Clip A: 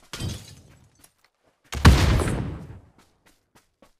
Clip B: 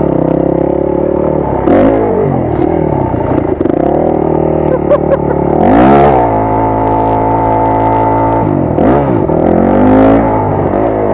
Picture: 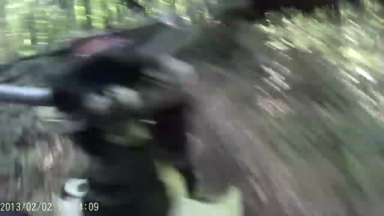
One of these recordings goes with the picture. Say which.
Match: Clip B